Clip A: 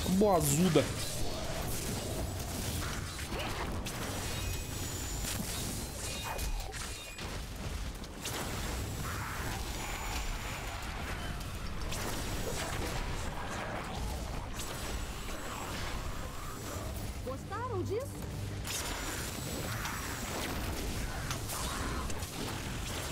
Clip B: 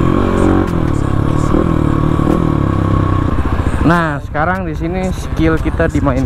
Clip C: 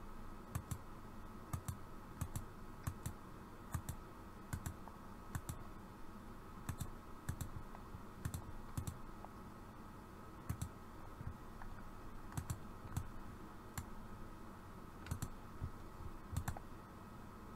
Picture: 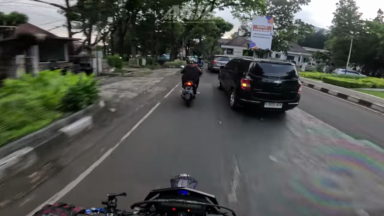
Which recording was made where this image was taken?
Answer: B